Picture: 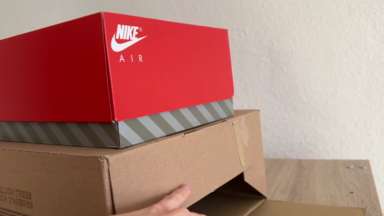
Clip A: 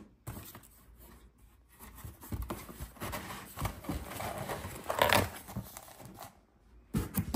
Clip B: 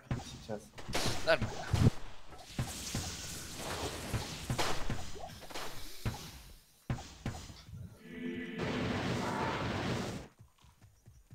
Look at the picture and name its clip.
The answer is A